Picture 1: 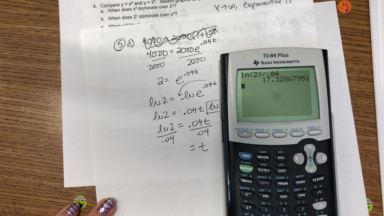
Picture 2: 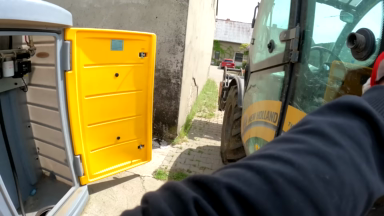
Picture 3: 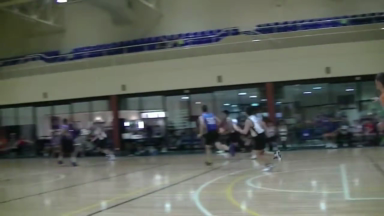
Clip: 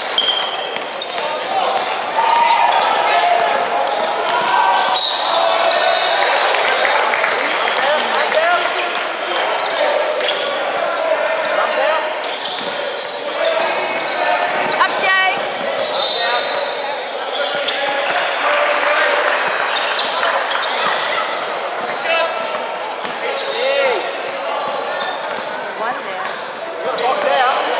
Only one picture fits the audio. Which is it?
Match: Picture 3